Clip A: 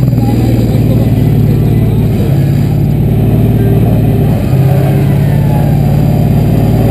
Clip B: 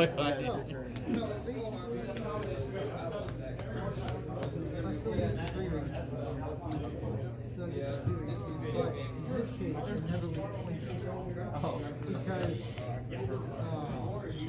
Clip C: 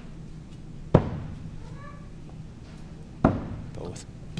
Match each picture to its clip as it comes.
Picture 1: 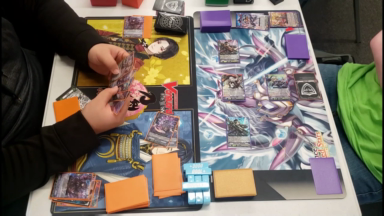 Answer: B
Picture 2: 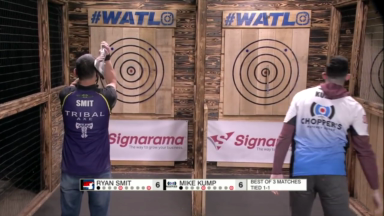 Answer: C